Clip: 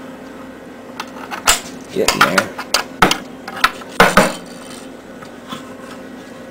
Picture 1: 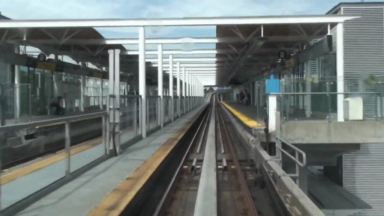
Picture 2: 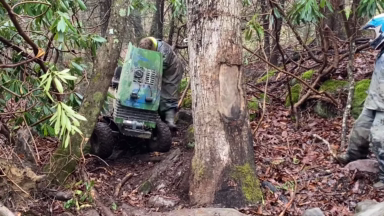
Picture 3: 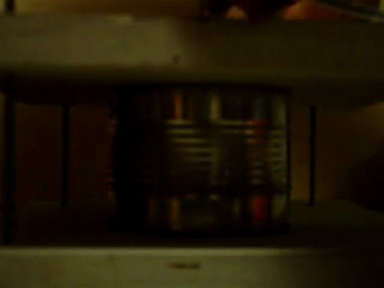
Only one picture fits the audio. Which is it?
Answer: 3